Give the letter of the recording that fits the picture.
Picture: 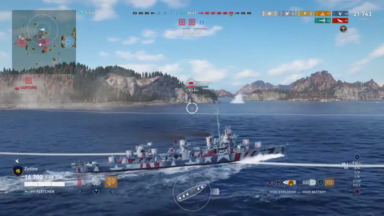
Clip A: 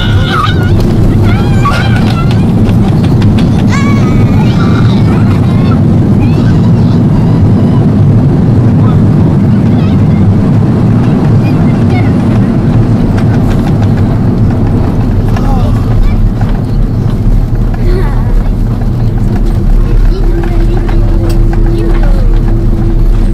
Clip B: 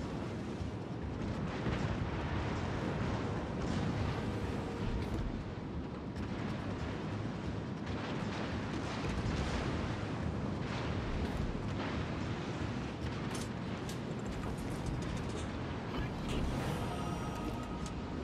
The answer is B